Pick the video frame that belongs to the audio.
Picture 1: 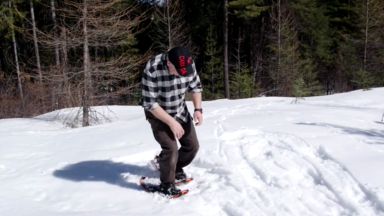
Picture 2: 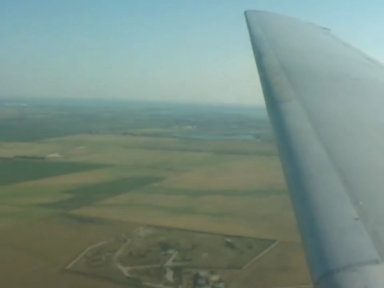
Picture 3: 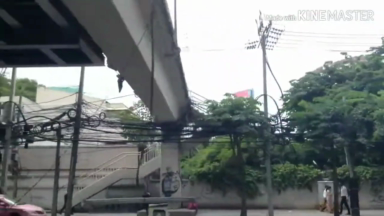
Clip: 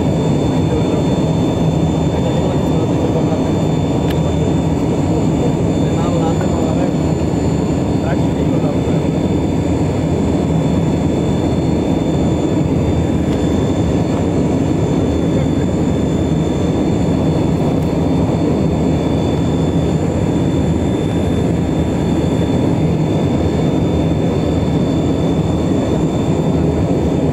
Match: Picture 2